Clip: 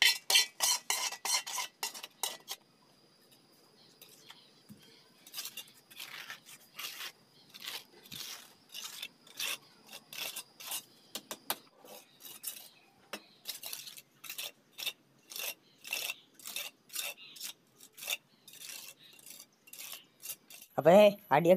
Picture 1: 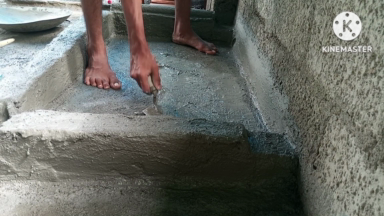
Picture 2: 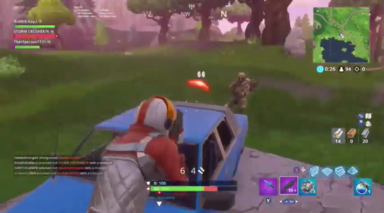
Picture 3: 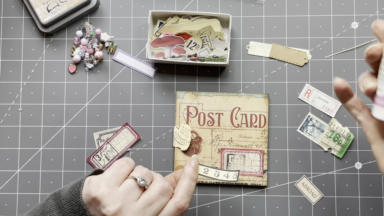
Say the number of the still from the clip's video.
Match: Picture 1